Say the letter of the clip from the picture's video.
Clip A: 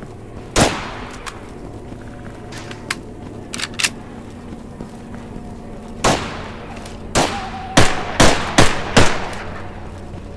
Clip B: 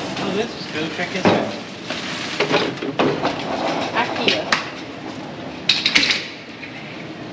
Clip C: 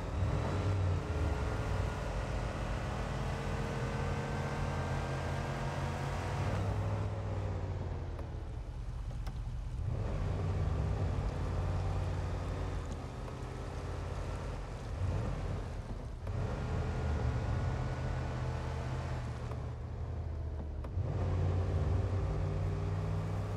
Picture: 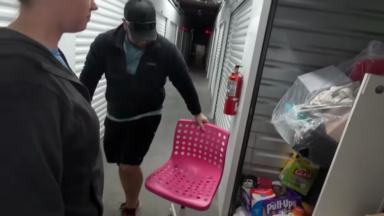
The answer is B